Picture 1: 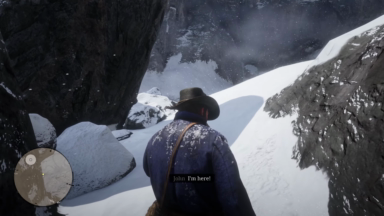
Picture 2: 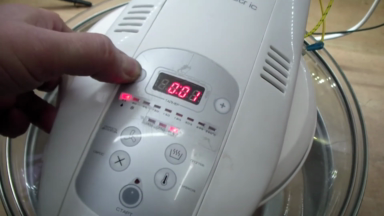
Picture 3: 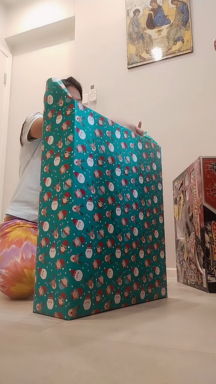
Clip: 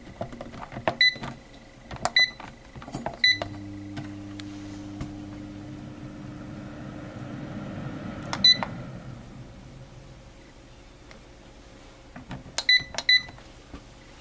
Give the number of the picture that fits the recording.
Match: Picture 2